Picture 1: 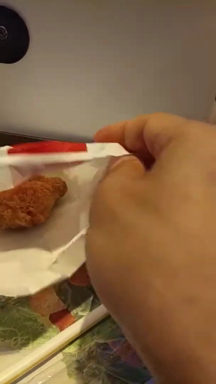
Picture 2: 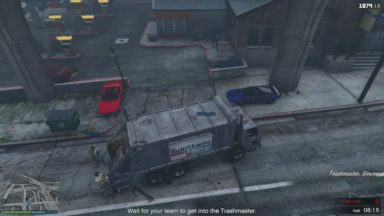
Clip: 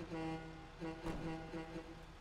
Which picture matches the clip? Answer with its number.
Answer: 2